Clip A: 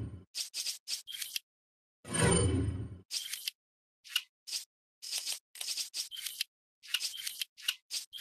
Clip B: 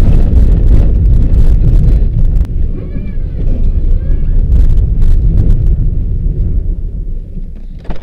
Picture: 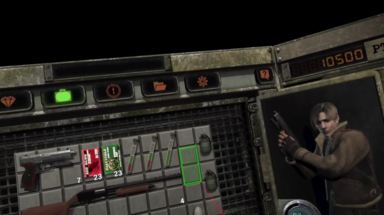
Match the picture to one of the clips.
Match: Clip A